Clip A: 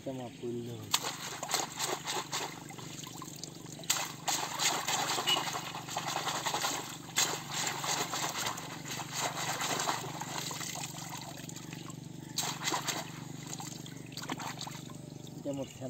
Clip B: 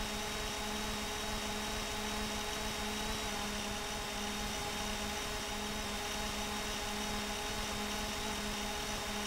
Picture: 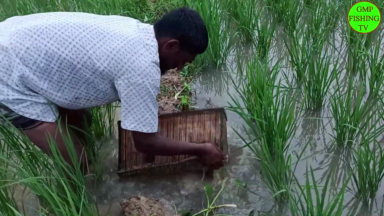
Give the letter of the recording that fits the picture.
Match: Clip A